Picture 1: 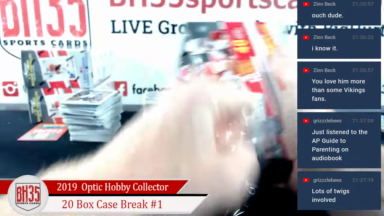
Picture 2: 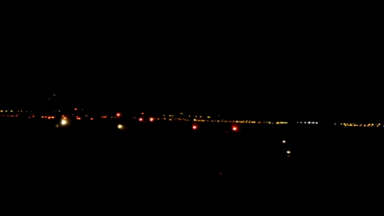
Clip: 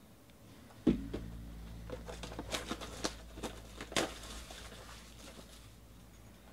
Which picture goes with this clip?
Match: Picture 1